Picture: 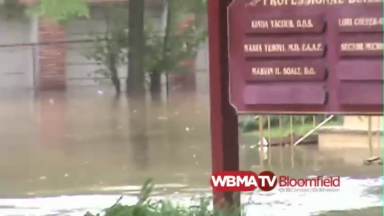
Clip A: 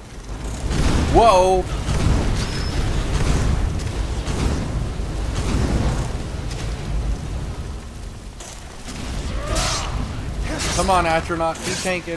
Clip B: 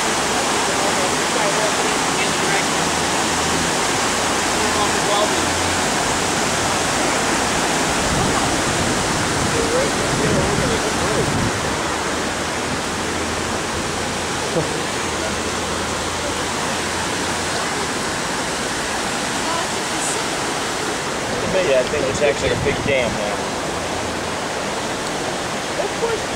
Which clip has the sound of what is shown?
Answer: B